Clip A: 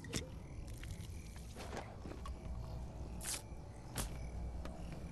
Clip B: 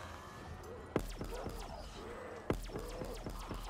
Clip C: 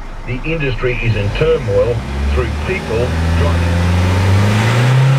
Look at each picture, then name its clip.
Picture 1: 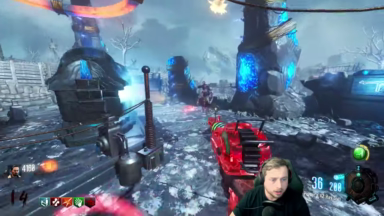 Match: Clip B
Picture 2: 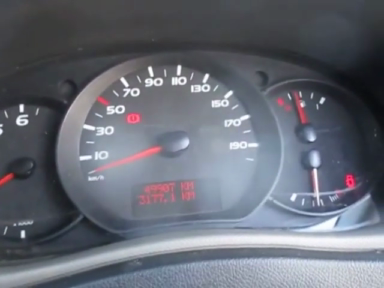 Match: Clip C